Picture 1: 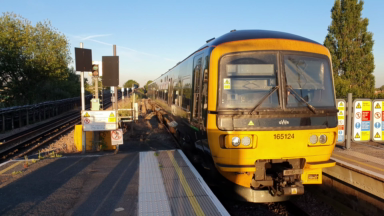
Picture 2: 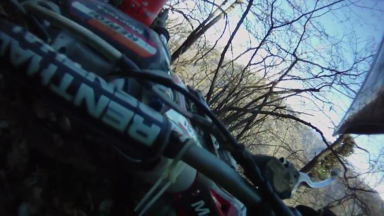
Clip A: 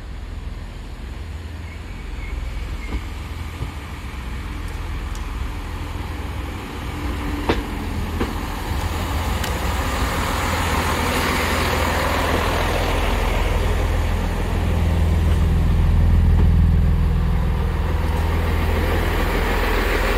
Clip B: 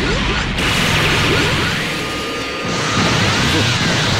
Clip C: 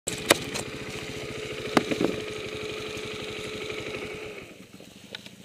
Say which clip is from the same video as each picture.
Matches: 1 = A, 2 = C